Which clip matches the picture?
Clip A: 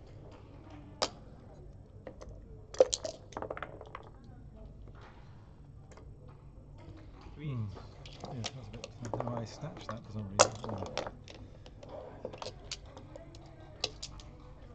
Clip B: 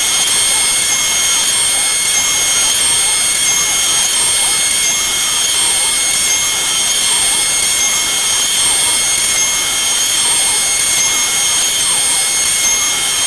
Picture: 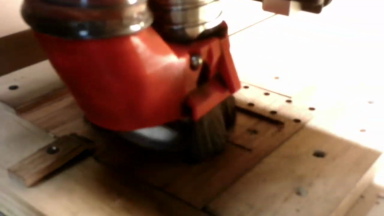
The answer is B